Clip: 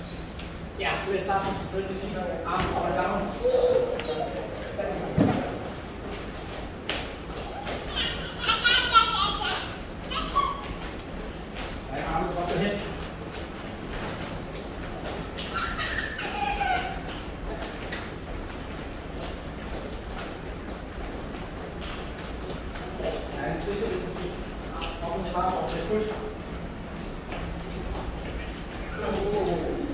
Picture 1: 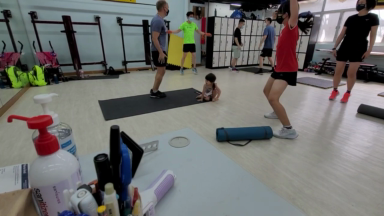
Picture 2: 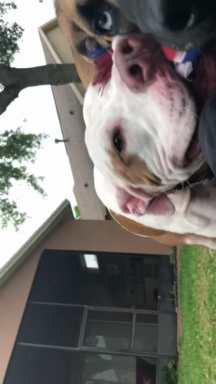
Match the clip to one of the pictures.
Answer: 1